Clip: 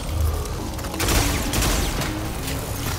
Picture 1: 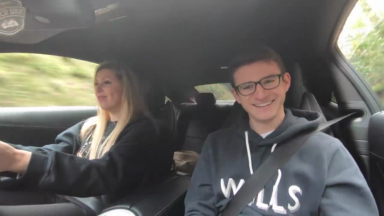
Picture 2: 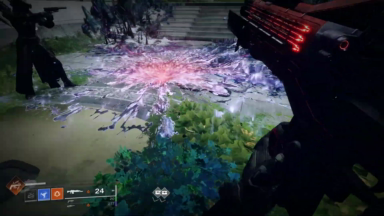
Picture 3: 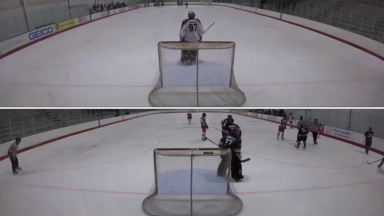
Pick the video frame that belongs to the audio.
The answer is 2